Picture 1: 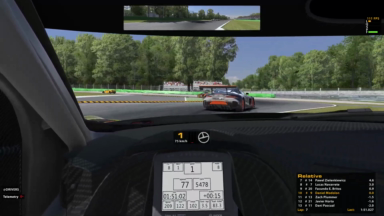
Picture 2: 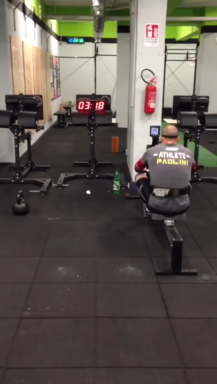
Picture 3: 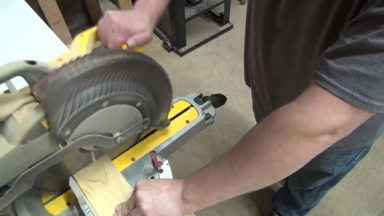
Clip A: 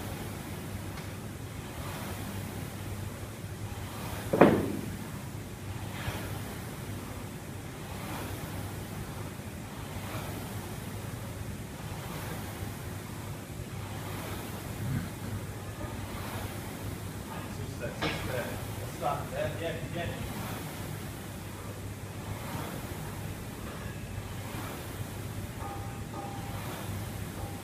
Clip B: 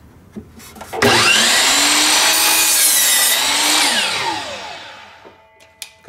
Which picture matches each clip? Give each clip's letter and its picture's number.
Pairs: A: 2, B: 3